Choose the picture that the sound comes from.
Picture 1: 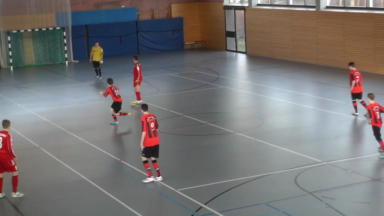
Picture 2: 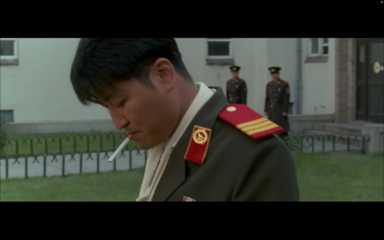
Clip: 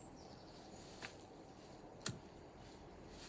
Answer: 2